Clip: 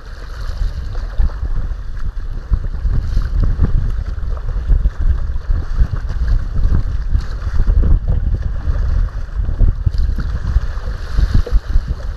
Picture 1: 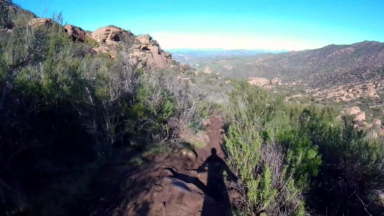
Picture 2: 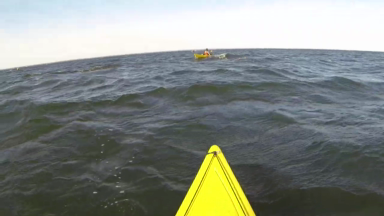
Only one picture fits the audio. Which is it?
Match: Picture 2